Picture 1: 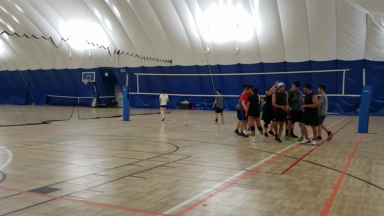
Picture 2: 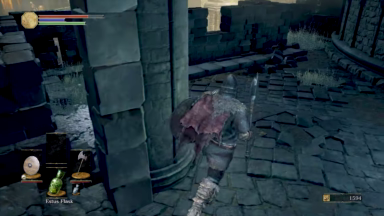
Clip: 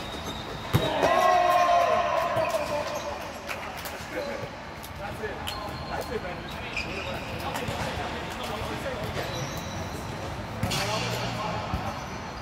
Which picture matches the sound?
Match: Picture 1